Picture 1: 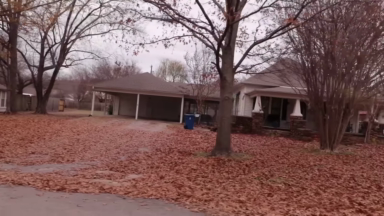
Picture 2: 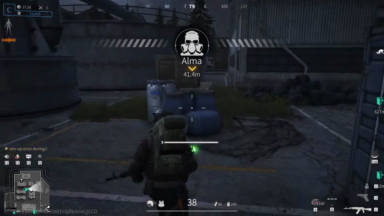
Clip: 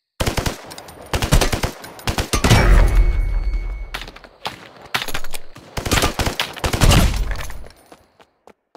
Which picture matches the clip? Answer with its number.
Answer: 2